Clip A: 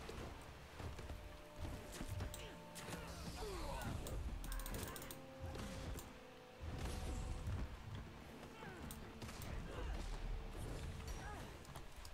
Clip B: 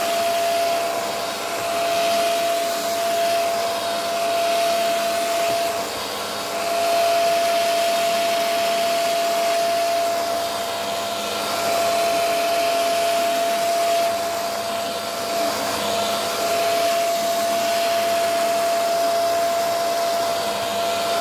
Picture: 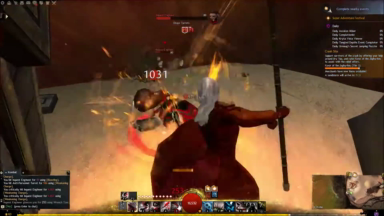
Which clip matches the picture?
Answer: A